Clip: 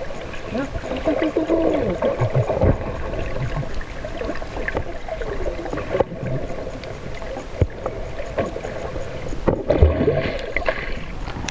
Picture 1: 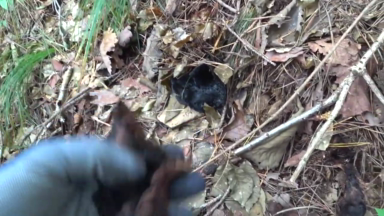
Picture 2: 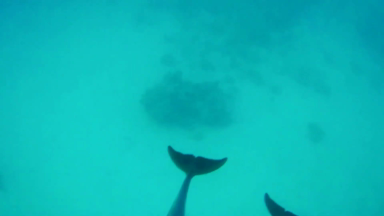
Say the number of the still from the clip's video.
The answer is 2